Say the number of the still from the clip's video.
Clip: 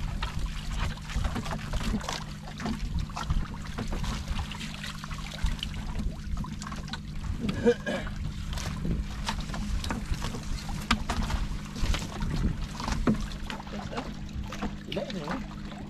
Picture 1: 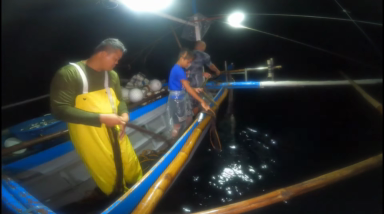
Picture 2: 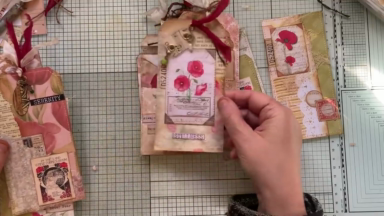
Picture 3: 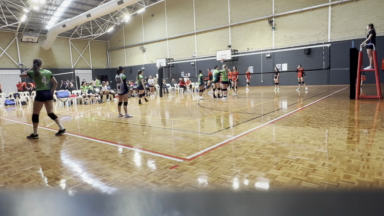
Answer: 1